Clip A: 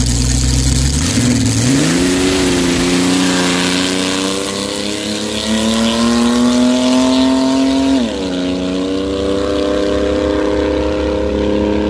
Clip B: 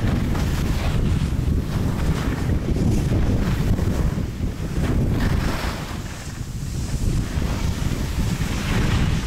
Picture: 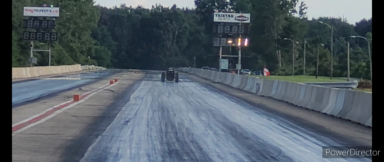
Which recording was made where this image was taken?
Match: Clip A